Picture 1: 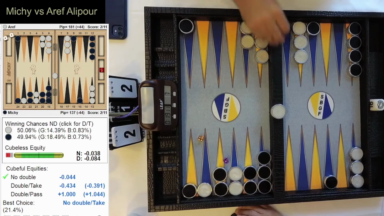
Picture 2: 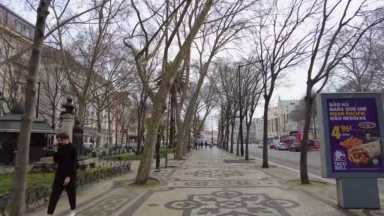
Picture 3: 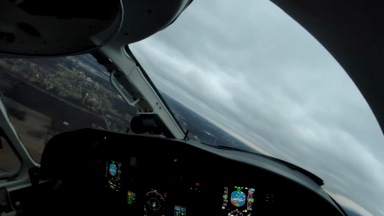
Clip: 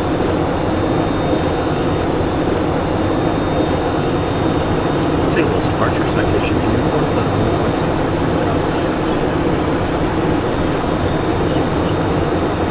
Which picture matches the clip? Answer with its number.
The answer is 3